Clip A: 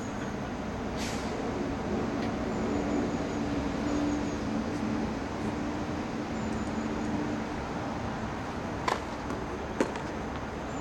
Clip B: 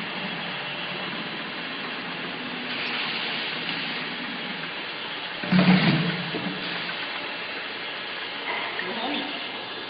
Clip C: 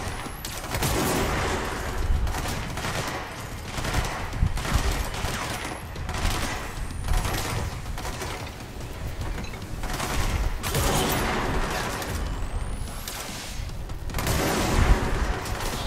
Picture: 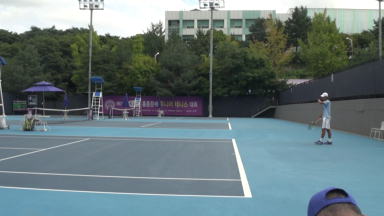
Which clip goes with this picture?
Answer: A